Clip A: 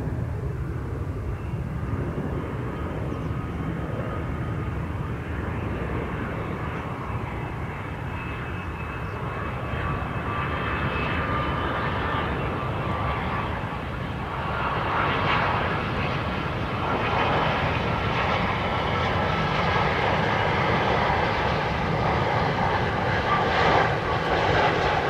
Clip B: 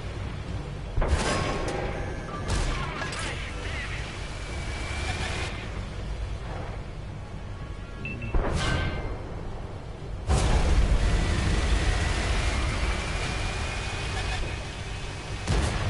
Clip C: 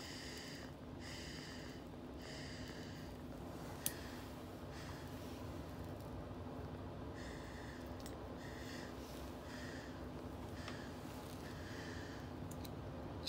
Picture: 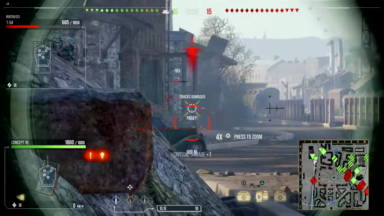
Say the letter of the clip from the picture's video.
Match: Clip B